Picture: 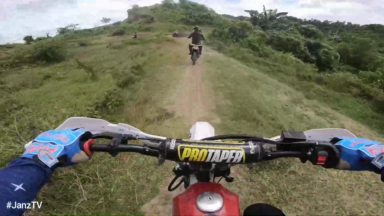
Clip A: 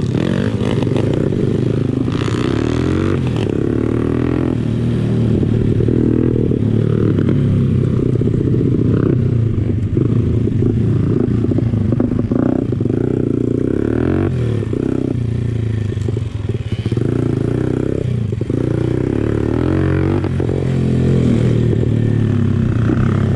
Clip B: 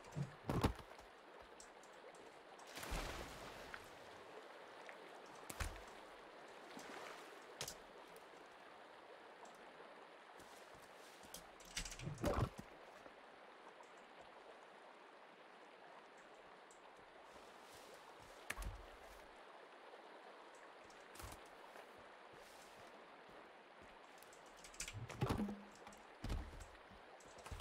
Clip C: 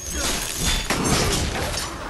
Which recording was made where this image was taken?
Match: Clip A